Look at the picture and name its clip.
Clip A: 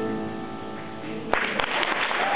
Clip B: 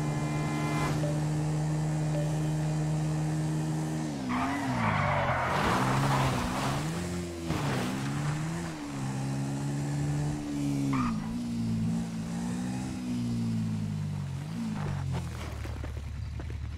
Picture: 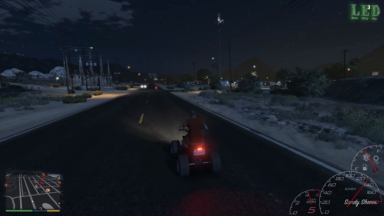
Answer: B